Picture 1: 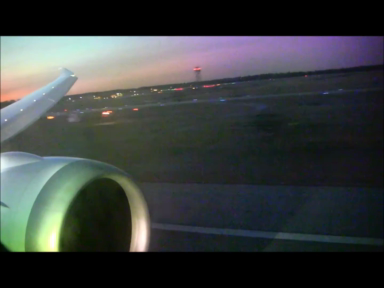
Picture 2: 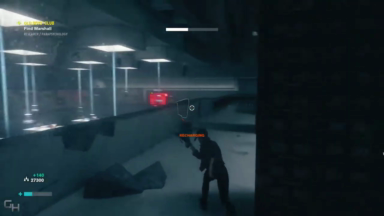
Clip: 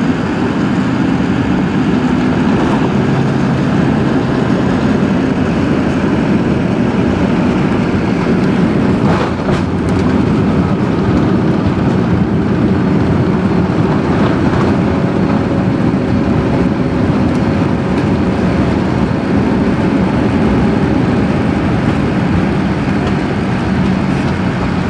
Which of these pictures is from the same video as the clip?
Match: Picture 1